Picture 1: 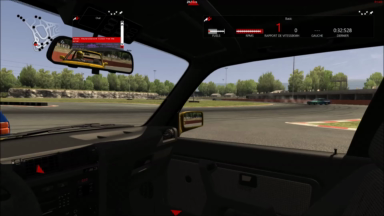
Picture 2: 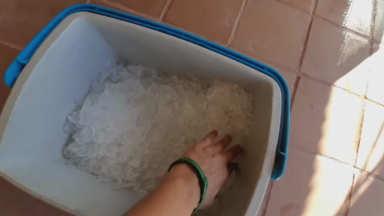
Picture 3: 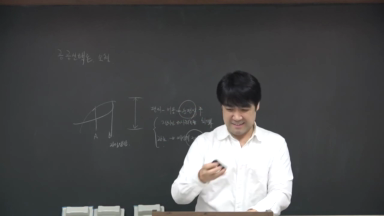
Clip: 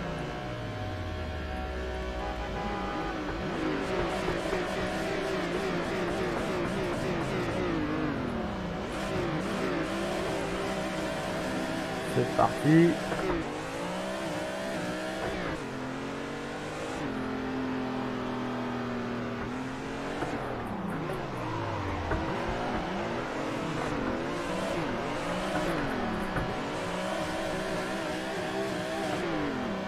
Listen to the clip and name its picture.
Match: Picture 1